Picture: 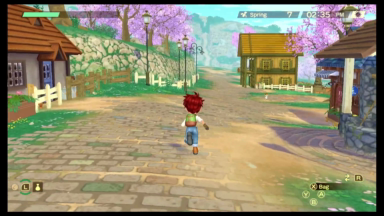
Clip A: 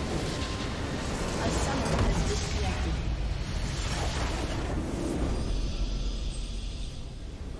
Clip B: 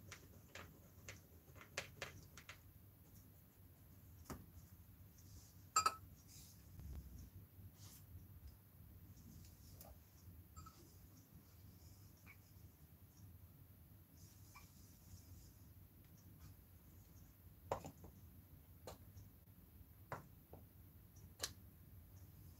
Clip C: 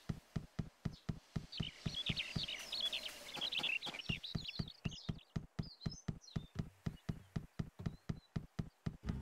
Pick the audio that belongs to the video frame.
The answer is C